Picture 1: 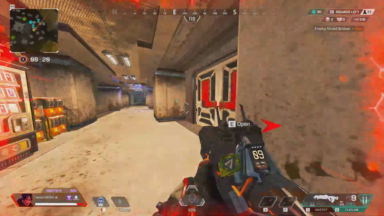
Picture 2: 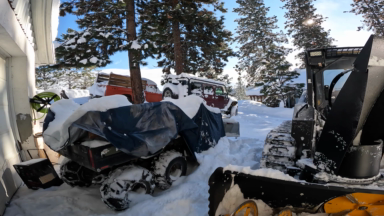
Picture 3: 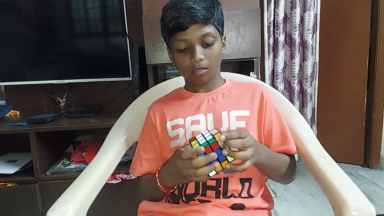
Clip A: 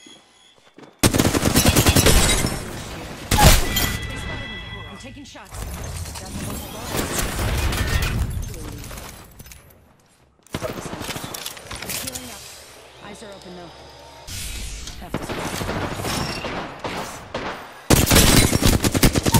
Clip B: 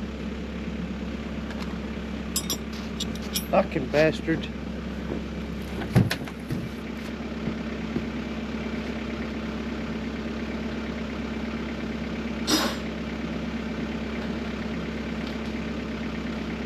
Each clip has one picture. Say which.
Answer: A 1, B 2